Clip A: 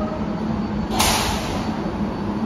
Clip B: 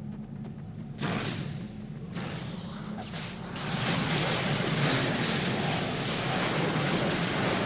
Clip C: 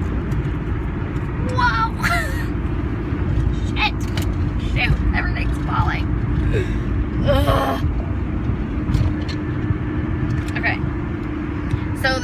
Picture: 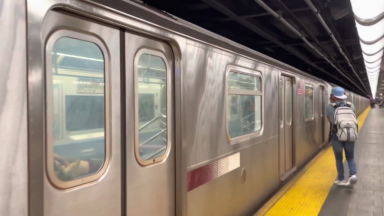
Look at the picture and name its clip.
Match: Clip A